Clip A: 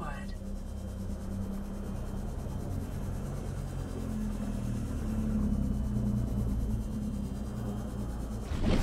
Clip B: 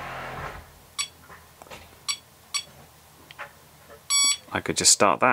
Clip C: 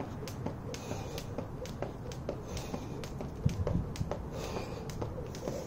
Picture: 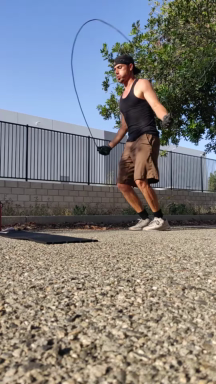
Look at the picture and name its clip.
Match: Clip C